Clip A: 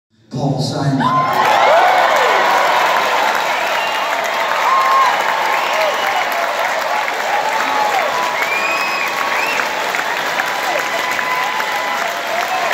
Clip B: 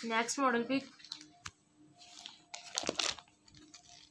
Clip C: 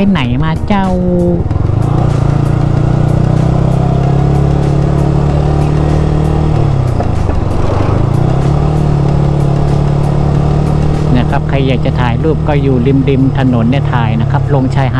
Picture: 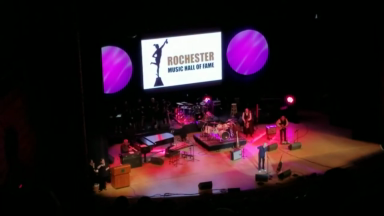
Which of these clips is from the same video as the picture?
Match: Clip A